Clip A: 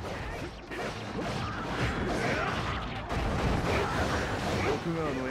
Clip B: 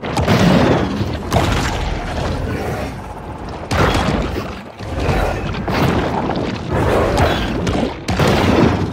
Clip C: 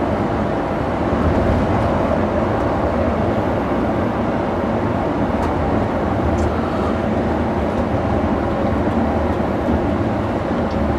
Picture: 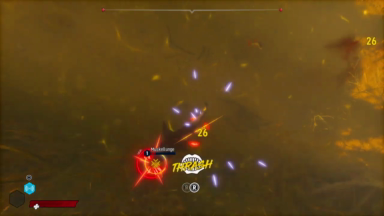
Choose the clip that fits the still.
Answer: B